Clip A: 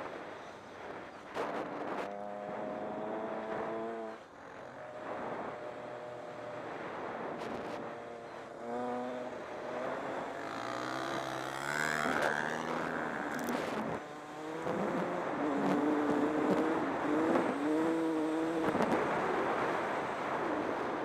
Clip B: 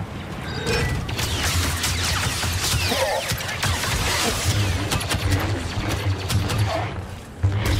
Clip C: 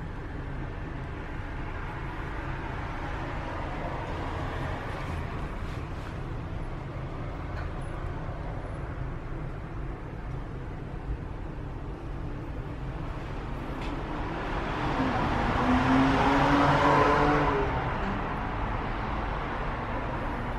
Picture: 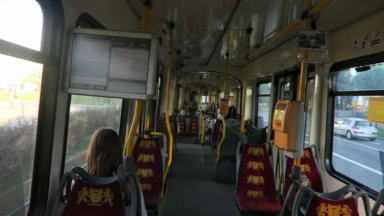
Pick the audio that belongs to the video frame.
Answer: C